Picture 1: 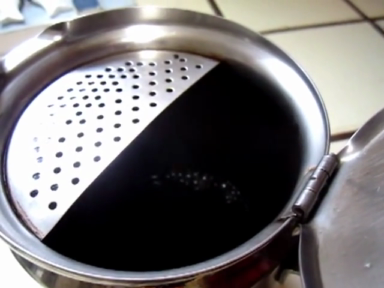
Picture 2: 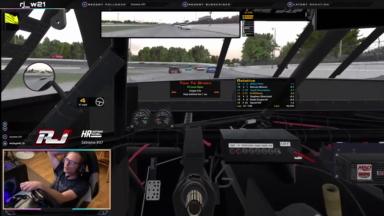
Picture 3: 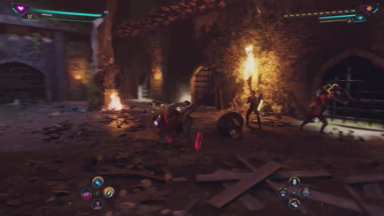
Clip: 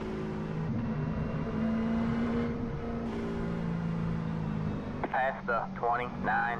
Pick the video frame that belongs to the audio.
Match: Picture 2